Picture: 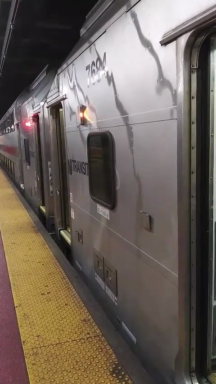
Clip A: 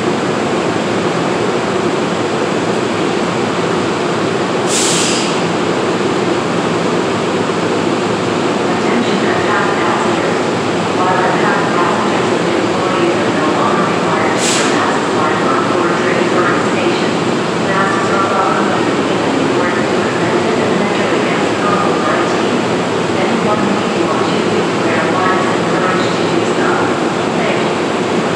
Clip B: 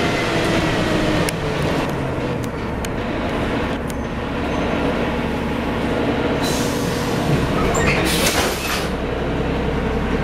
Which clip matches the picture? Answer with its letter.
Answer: A